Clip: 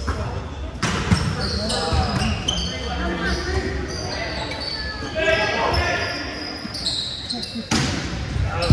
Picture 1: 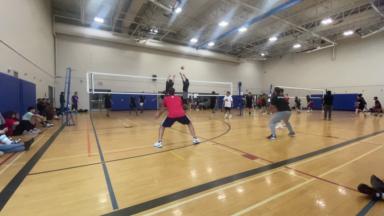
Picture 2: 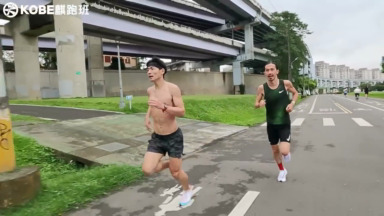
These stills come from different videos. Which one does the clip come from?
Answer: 1